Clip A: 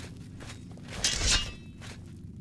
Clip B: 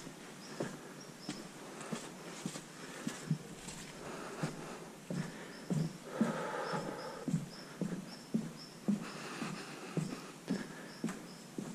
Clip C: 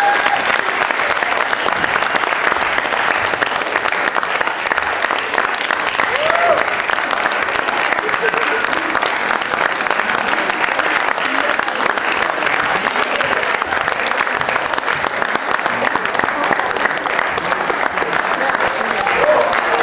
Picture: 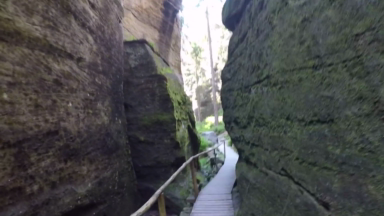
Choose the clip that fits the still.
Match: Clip B